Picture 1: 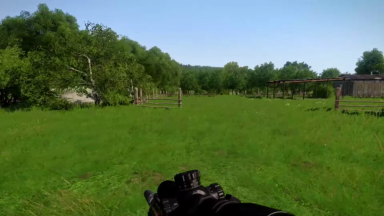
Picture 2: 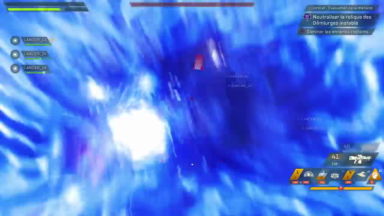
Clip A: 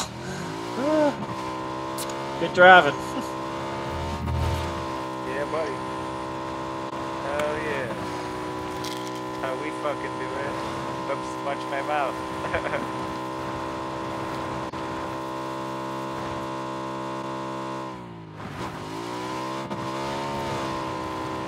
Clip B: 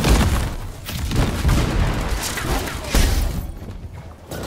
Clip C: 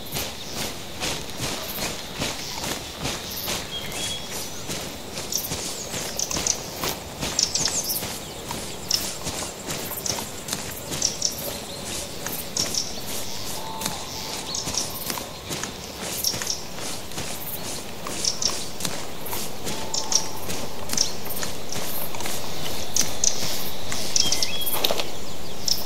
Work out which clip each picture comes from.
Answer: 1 C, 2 B